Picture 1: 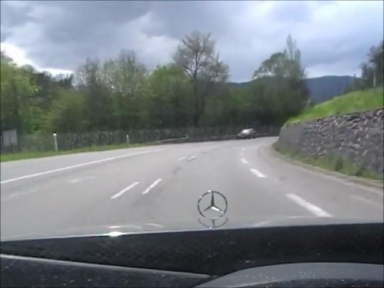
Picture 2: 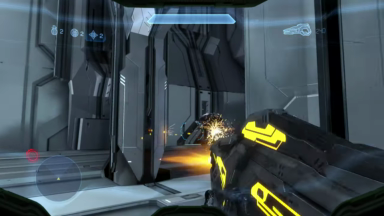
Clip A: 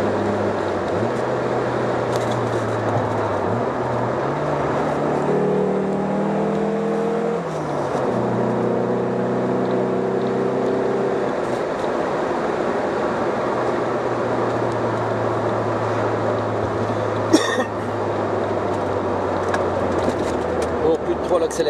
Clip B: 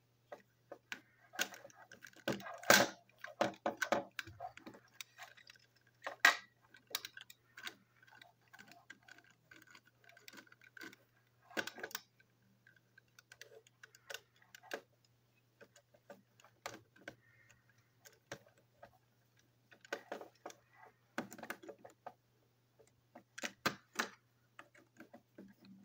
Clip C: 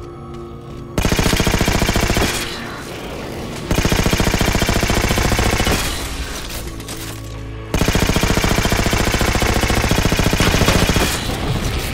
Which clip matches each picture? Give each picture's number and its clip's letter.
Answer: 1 A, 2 C